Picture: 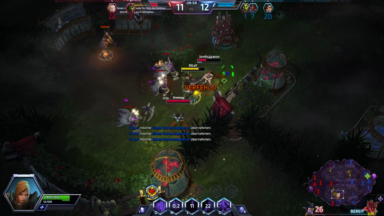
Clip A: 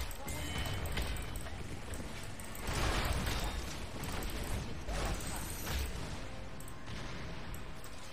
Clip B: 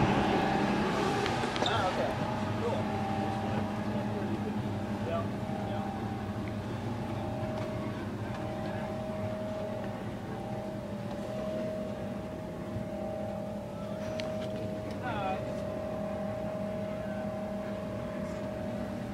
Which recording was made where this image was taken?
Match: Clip A